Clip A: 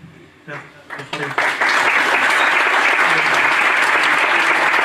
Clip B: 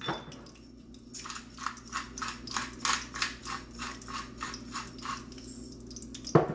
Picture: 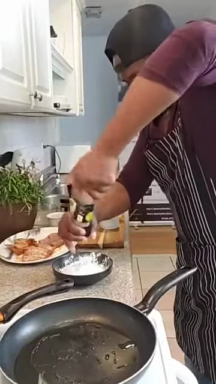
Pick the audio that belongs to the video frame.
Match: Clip B